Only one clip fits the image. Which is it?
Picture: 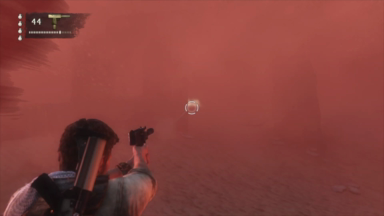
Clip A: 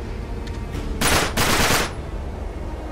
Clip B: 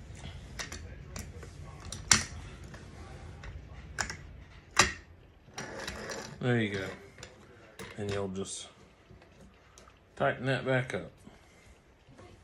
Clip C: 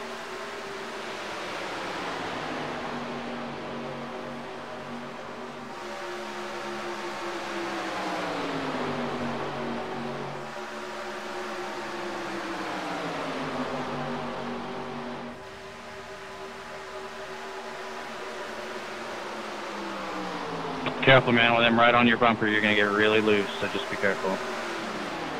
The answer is A